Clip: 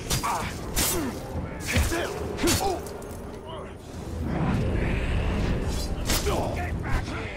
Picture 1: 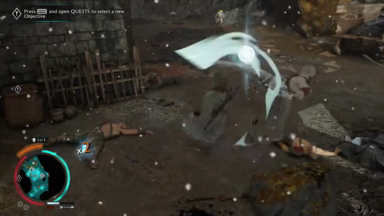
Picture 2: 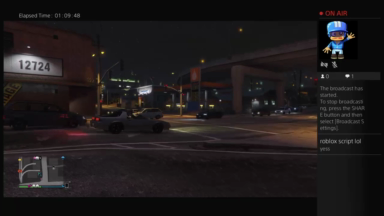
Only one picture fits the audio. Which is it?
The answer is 1